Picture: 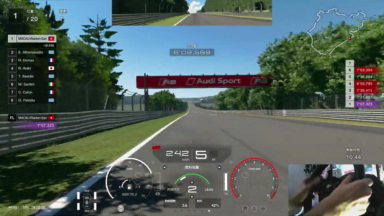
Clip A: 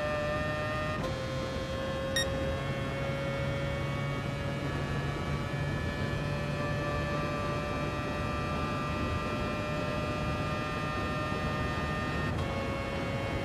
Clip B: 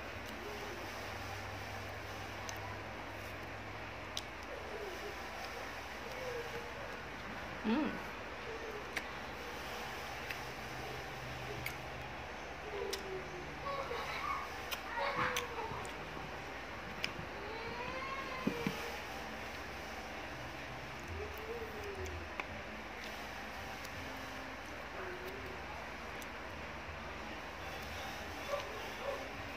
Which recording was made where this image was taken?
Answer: A